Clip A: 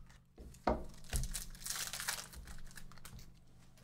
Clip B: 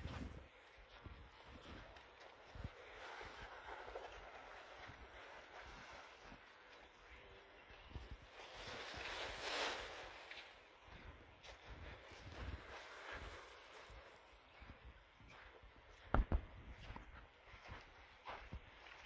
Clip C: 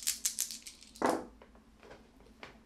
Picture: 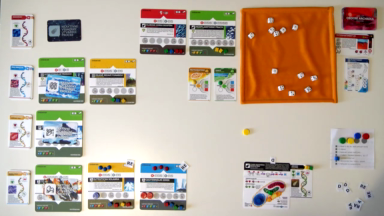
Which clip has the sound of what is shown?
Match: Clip C